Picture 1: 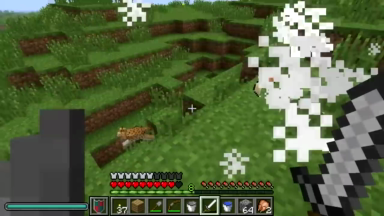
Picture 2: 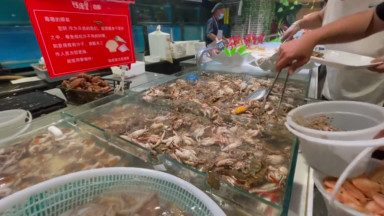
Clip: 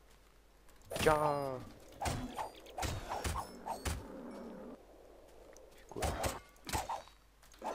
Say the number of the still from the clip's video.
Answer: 1